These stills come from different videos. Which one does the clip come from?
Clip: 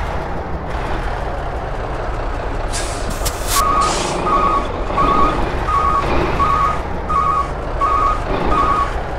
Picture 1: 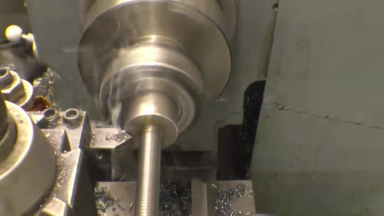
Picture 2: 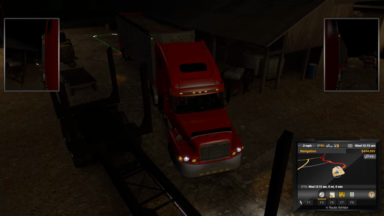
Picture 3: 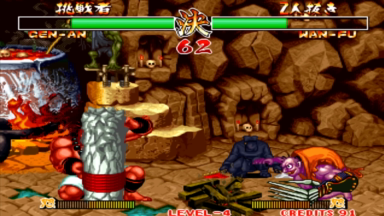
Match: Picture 2